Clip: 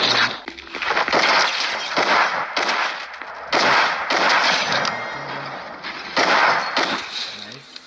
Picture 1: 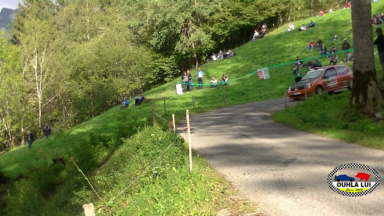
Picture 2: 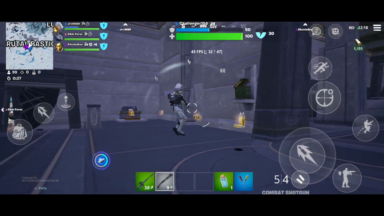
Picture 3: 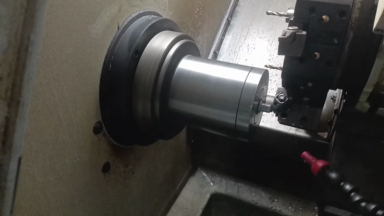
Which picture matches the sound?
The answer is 2